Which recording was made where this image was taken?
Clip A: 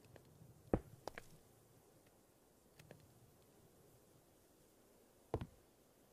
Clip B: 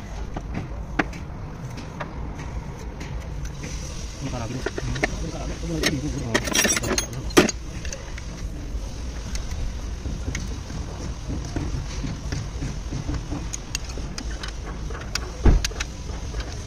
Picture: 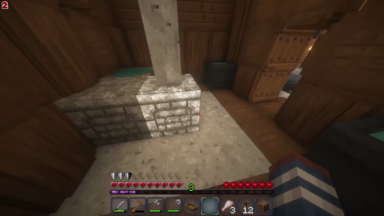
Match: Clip A